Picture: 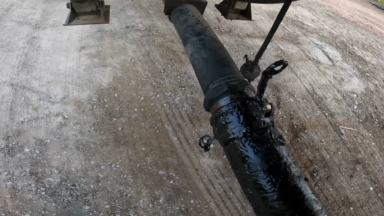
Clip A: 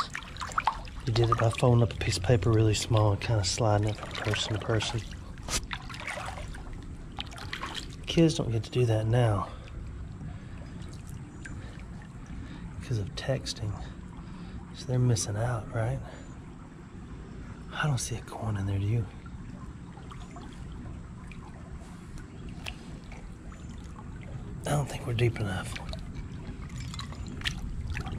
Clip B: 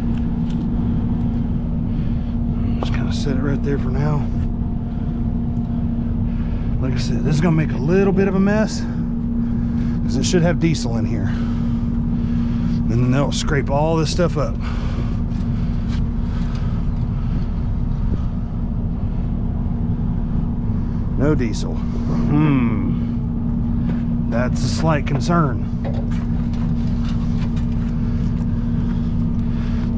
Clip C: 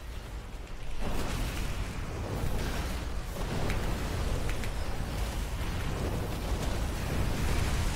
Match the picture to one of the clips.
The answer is B